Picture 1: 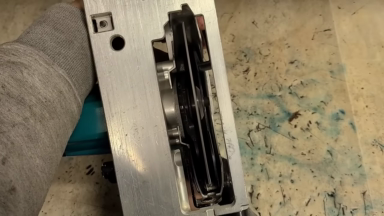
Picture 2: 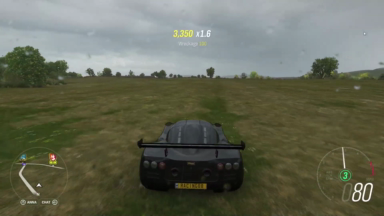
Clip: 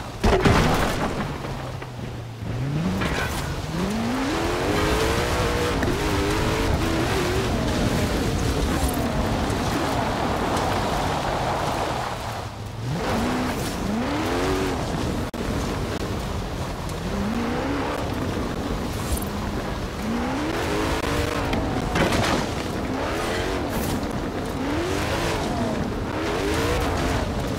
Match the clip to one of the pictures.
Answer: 2